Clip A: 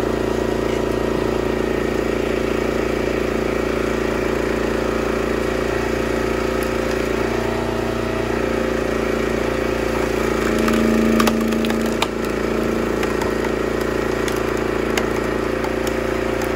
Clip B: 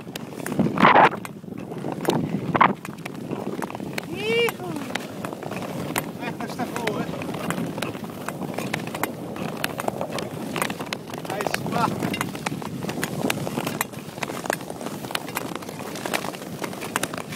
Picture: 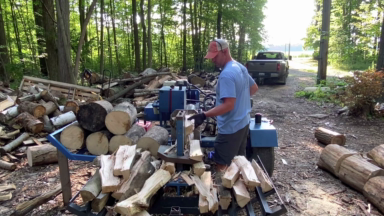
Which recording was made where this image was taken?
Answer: A